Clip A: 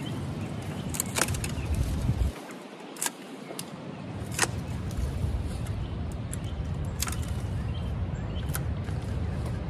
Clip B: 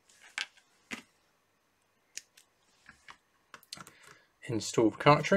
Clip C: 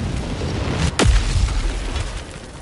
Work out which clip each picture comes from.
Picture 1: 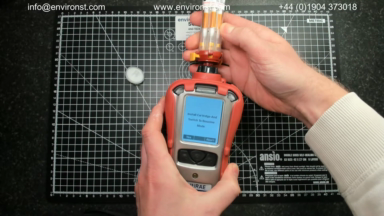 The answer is B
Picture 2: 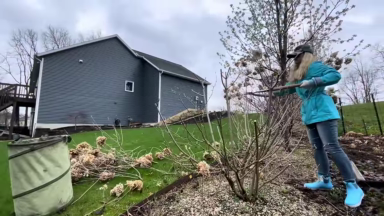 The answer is A